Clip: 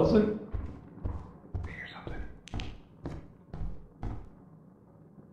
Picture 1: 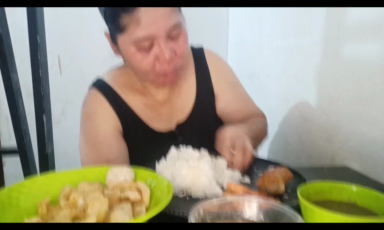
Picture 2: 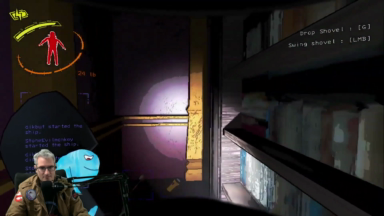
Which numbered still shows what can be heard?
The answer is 2